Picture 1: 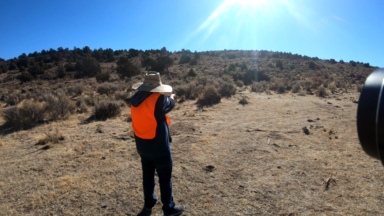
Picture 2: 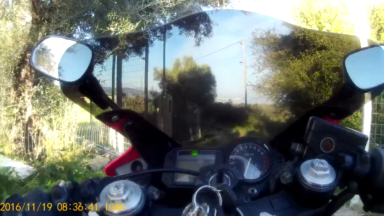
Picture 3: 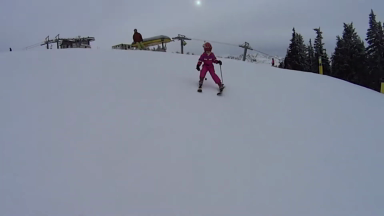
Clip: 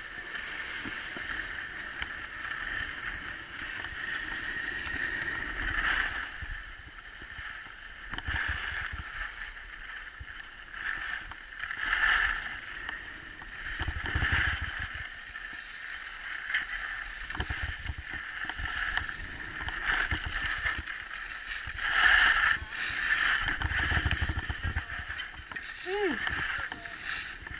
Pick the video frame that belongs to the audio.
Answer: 3